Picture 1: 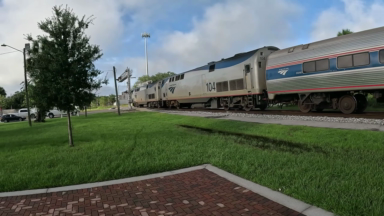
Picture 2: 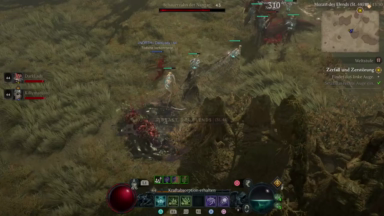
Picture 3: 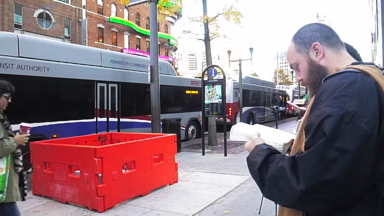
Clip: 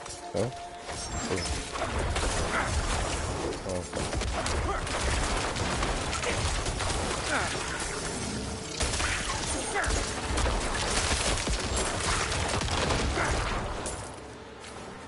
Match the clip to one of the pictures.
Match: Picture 2